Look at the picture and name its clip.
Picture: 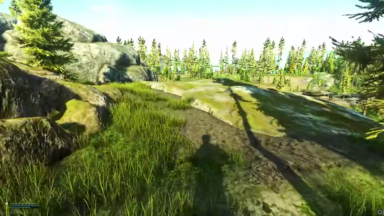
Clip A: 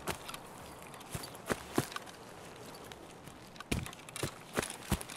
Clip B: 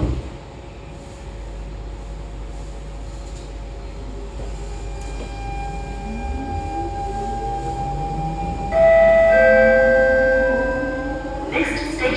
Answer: A